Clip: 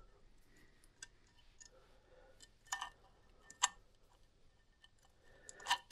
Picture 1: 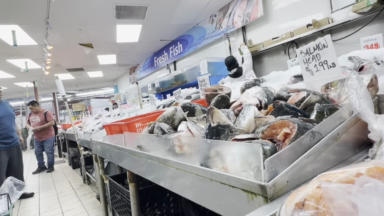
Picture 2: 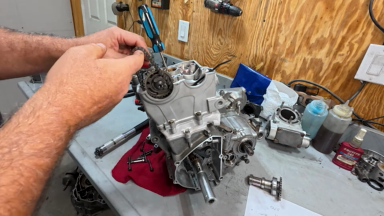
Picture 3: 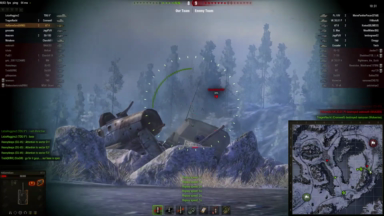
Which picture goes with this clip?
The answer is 2